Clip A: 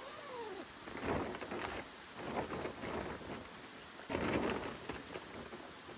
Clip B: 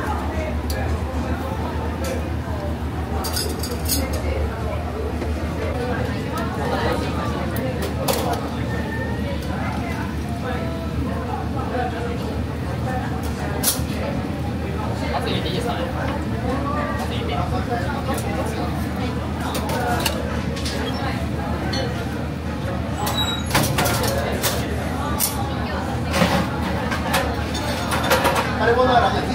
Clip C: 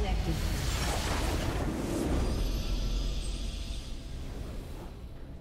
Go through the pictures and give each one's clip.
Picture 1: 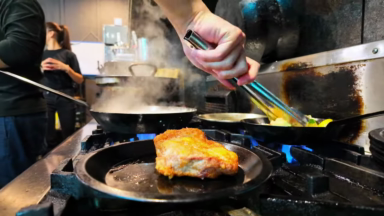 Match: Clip B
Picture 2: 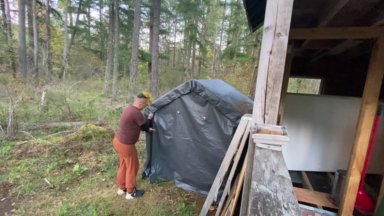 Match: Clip A